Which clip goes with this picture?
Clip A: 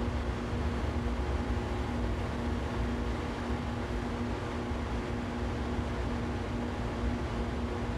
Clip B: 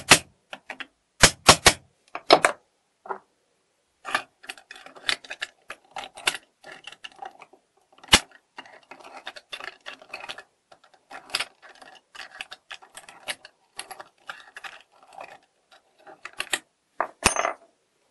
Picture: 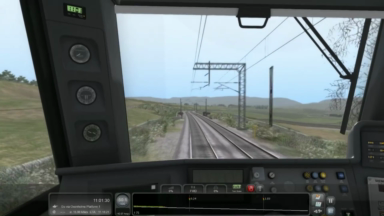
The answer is A